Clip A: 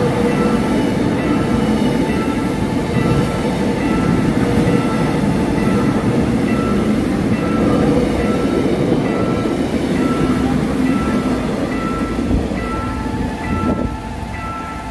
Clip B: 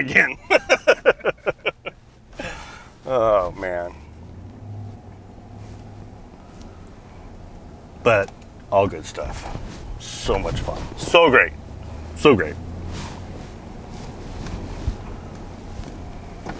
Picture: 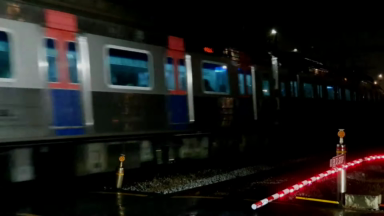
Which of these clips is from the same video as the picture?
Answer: A